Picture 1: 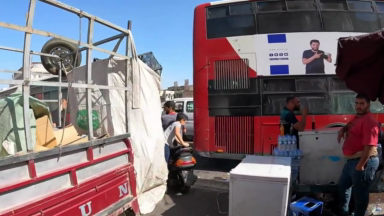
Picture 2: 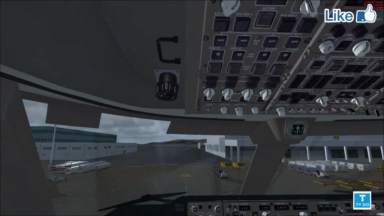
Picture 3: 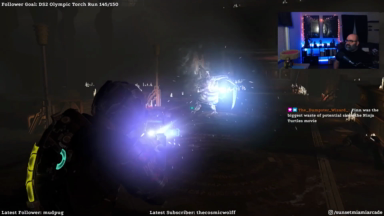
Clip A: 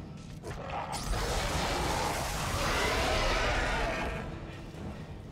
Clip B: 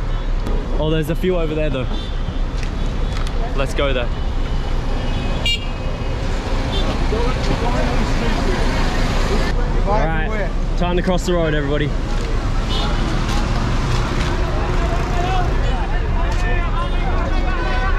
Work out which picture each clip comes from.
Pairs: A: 3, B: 1